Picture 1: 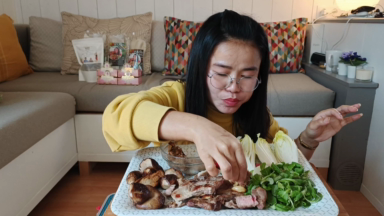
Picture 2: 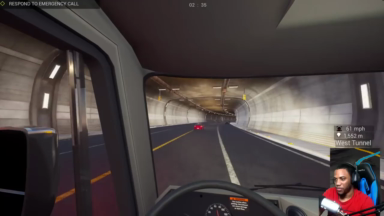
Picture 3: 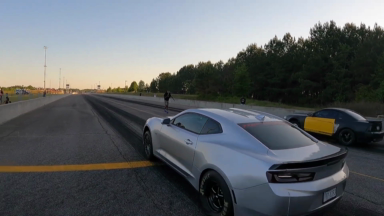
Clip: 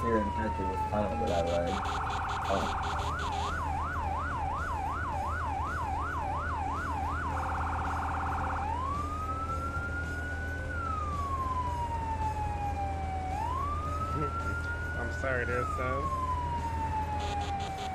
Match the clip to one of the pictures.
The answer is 2